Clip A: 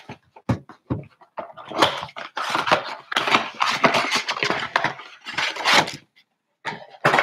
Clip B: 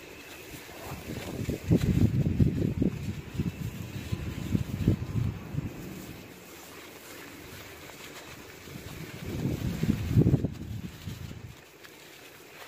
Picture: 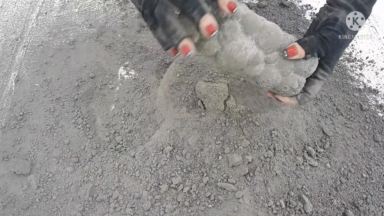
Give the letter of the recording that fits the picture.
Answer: B